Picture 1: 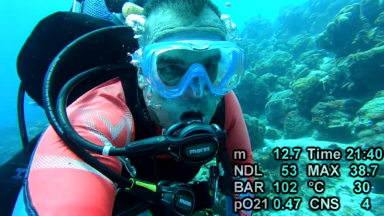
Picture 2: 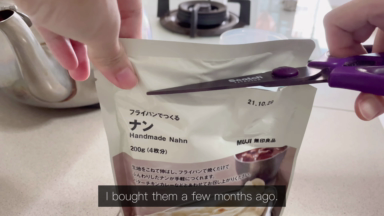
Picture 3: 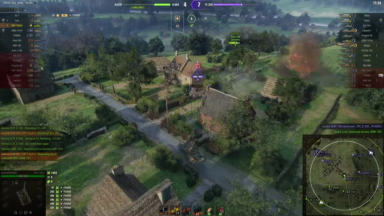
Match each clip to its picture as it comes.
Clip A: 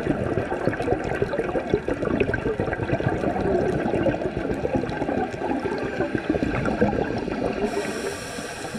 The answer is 1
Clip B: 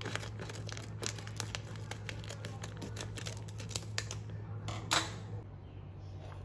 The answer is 2